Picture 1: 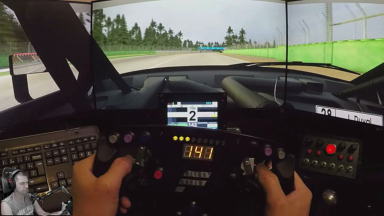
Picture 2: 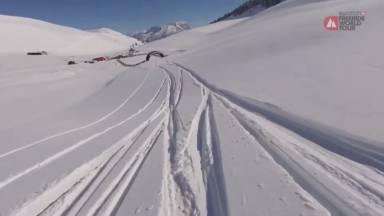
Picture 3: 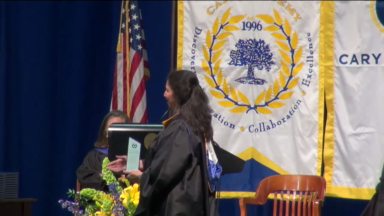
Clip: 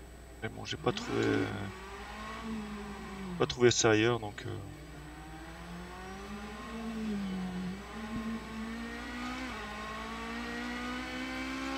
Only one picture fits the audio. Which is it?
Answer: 1